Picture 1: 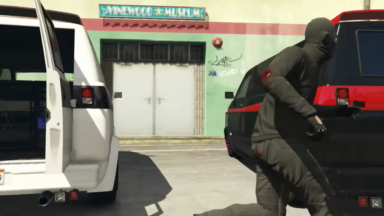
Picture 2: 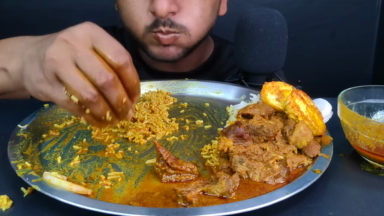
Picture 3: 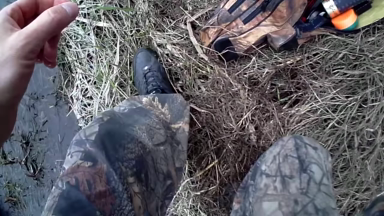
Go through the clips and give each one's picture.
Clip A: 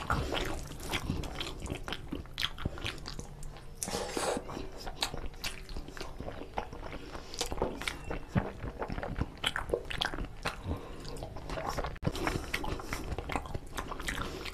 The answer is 2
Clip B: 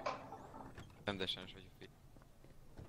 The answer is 1